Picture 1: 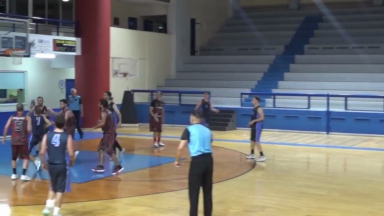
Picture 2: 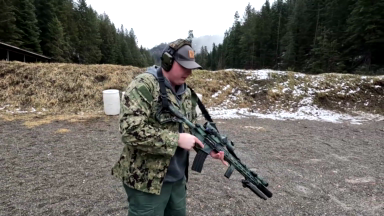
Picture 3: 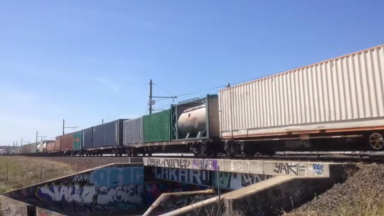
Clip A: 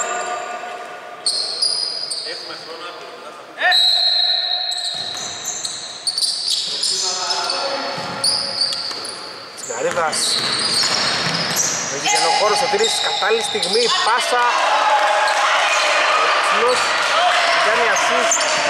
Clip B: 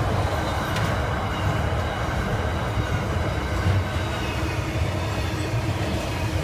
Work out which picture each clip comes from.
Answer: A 1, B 3